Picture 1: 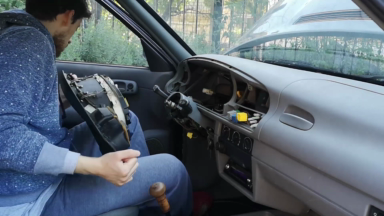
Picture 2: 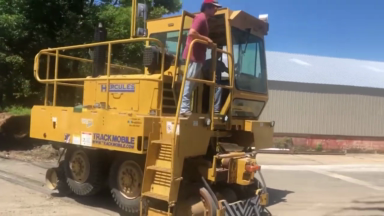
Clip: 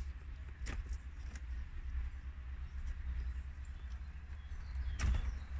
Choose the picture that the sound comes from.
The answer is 1